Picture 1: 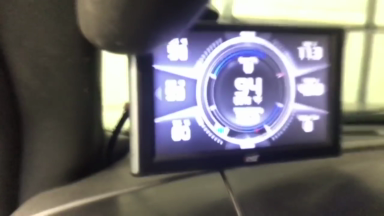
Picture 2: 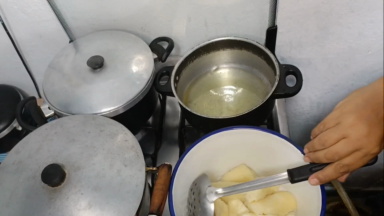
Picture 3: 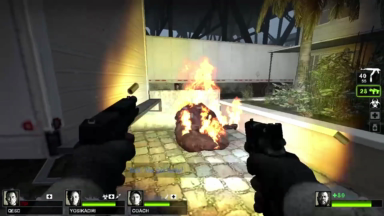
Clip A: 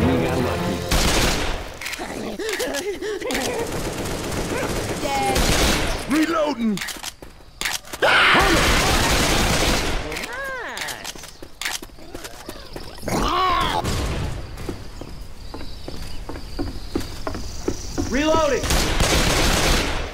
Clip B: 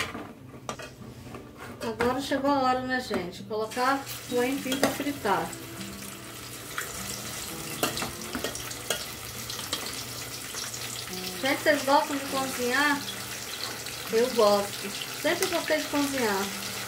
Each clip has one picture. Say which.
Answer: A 3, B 2